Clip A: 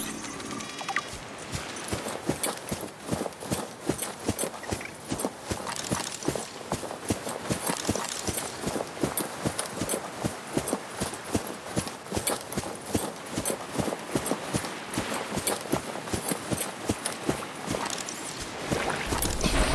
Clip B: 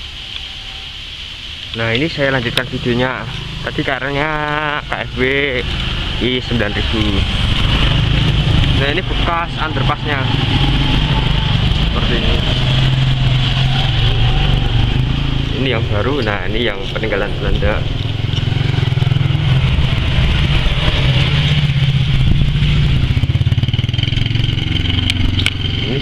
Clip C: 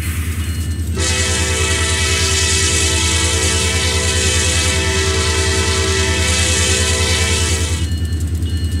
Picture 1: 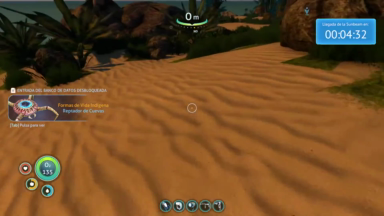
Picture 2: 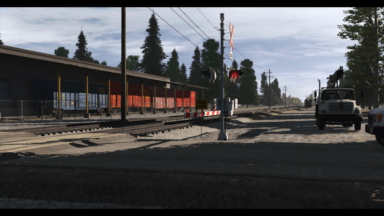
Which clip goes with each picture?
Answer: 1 A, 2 C